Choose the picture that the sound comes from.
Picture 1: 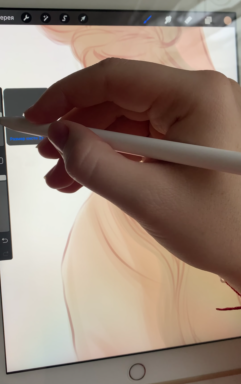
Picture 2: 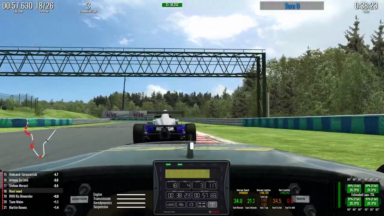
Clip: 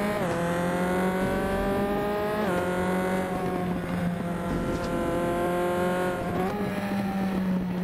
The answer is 2